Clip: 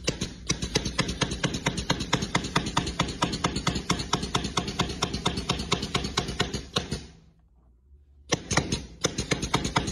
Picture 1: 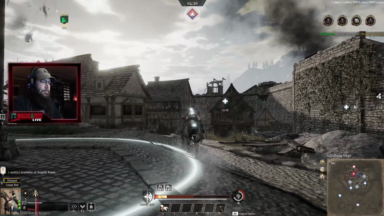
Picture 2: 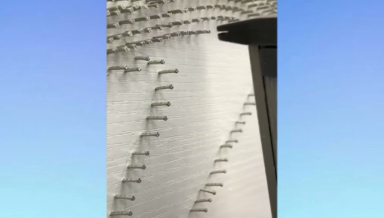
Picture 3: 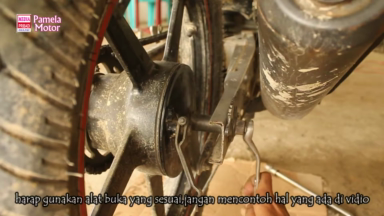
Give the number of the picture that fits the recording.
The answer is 2